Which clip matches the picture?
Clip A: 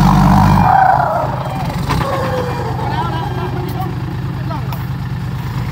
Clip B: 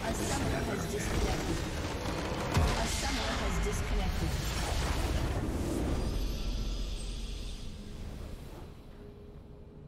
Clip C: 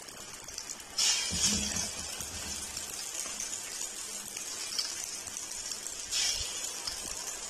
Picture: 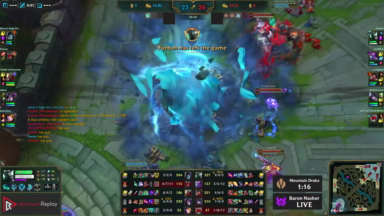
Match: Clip B